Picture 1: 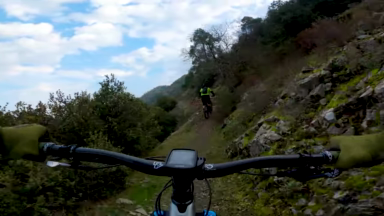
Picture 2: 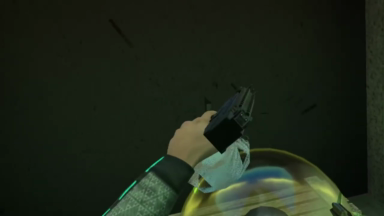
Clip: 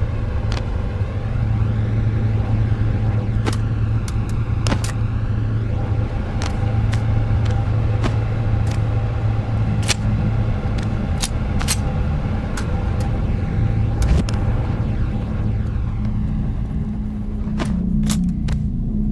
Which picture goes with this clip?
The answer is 2